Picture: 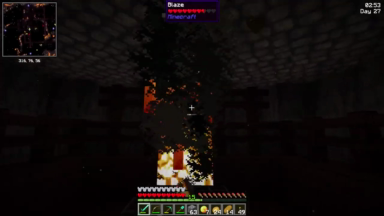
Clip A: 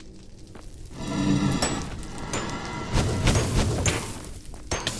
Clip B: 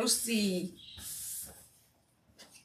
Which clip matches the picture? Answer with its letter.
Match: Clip A